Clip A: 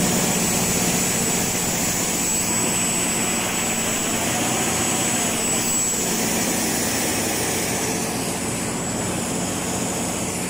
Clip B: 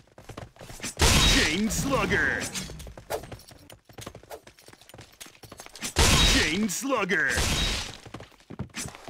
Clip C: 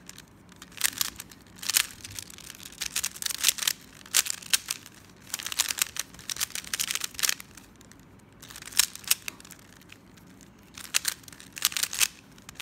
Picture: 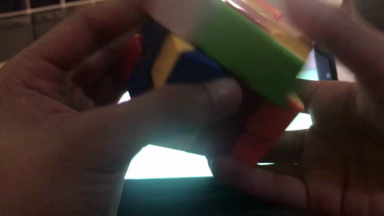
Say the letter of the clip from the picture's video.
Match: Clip C